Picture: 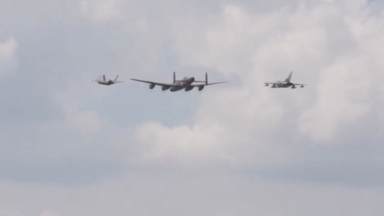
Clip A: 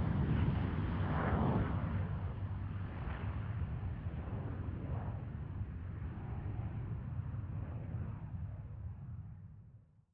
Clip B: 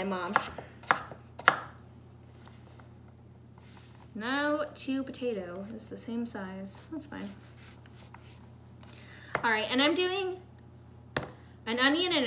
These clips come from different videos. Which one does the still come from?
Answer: A